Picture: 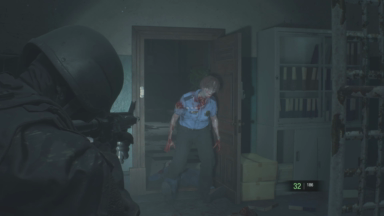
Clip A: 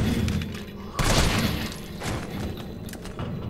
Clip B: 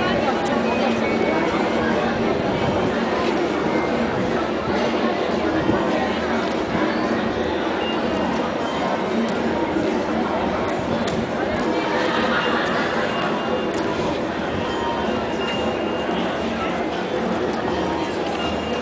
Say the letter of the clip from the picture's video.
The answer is A